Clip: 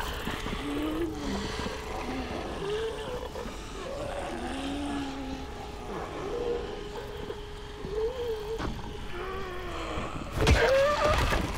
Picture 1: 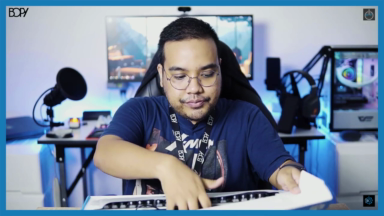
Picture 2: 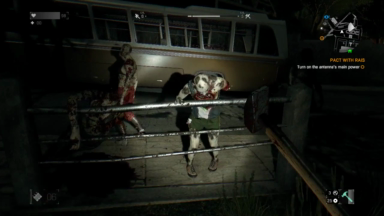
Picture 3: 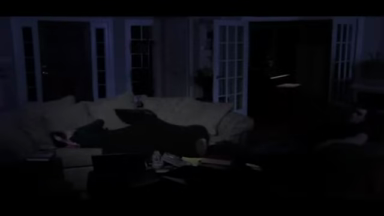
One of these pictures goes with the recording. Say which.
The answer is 2